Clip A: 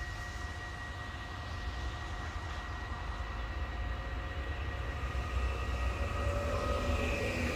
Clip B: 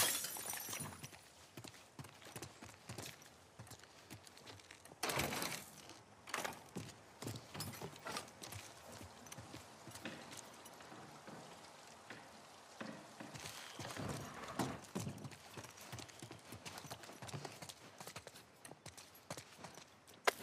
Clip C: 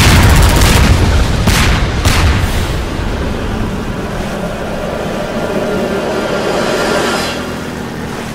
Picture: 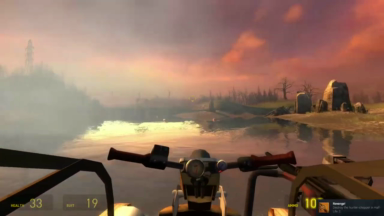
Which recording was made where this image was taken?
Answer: C